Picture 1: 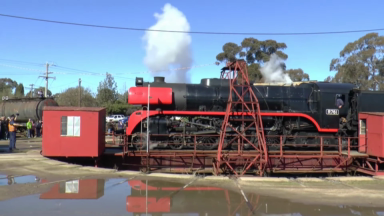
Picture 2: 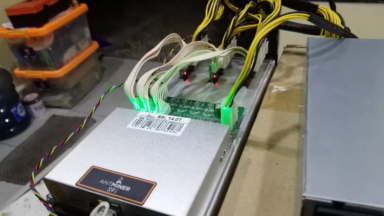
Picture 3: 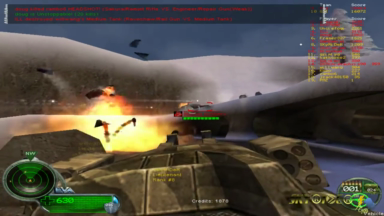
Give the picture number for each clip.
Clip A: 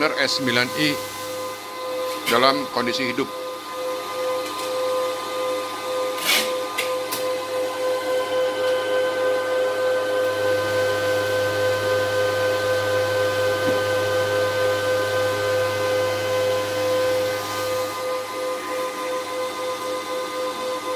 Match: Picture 2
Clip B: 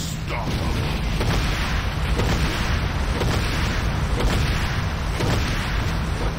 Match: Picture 3